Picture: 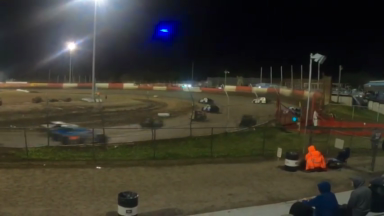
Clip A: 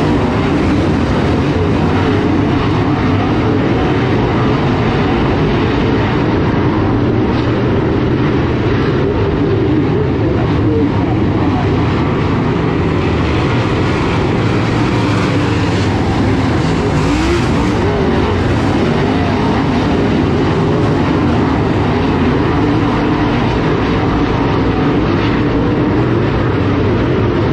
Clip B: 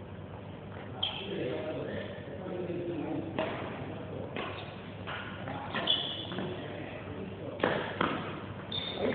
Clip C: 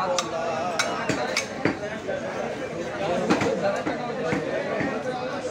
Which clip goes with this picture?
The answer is A